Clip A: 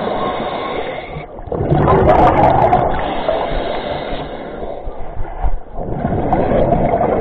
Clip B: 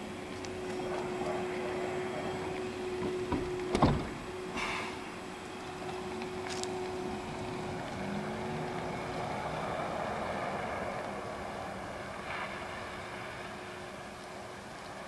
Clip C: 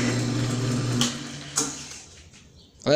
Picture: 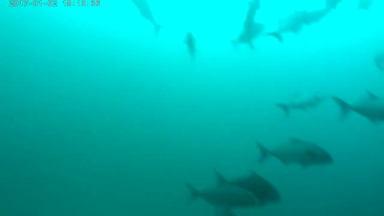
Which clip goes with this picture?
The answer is A